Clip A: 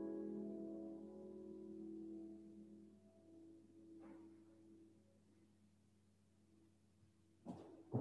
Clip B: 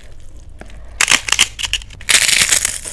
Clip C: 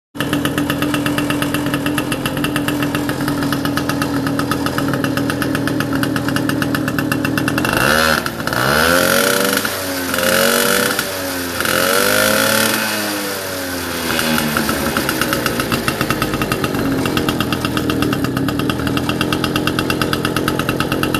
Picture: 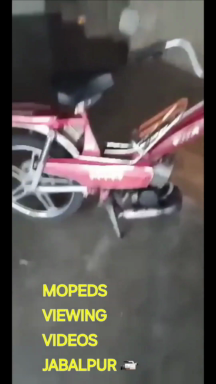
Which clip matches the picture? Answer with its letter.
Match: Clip C